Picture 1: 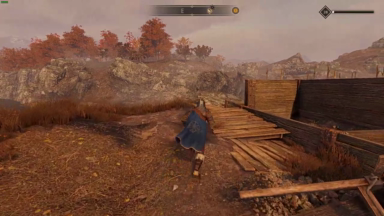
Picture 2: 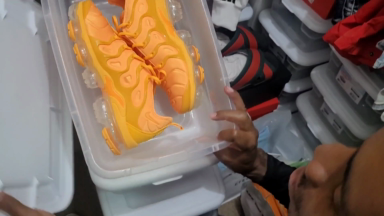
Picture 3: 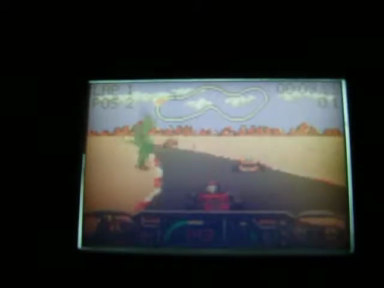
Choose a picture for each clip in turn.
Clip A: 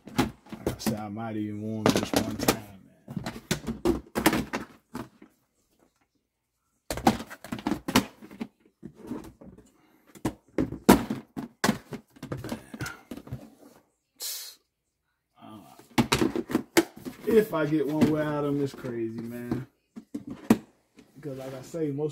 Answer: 2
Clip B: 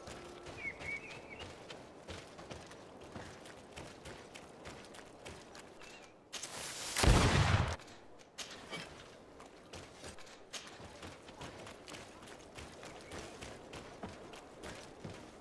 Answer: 1